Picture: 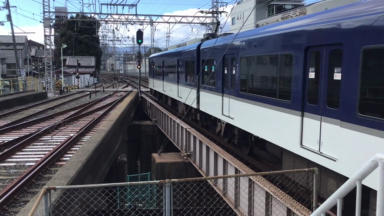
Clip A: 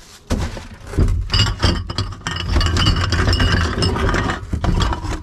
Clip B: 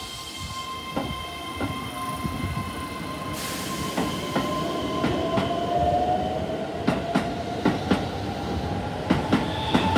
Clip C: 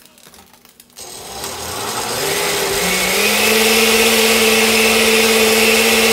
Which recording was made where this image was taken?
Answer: B